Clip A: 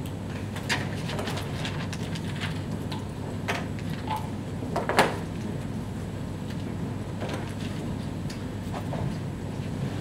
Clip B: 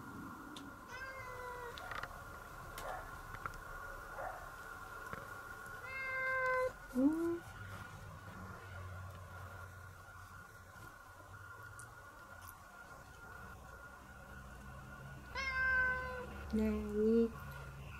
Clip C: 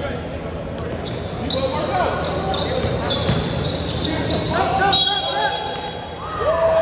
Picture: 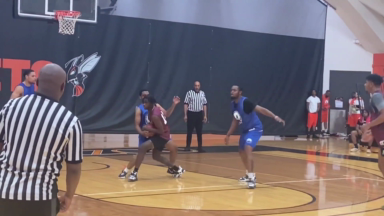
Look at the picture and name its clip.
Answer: C